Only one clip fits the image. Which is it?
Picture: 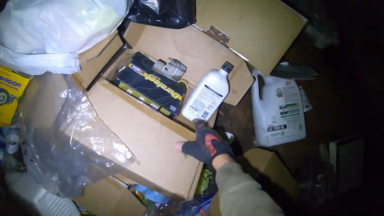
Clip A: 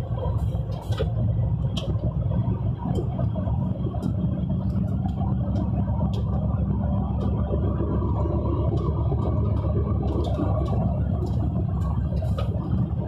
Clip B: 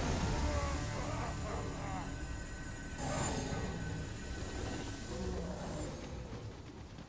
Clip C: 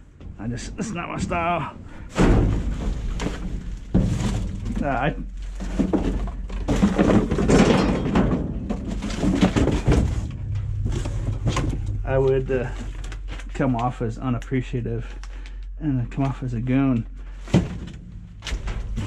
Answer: C